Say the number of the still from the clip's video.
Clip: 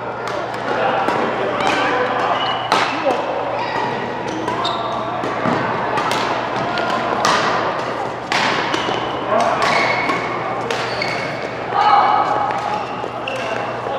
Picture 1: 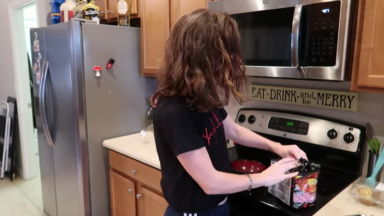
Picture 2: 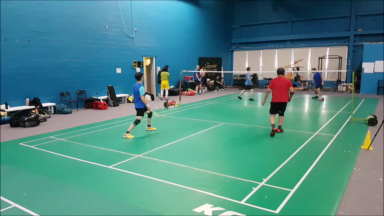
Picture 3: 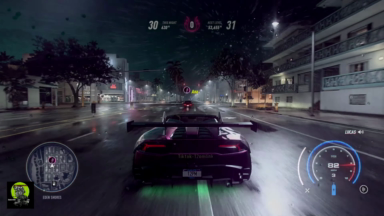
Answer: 2